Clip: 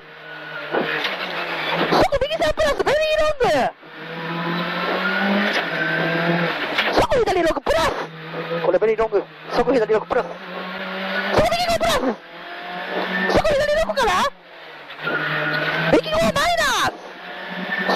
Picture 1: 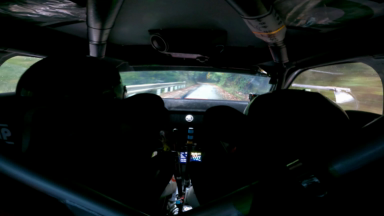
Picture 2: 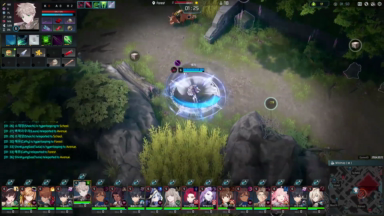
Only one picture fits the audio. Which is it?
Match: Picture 1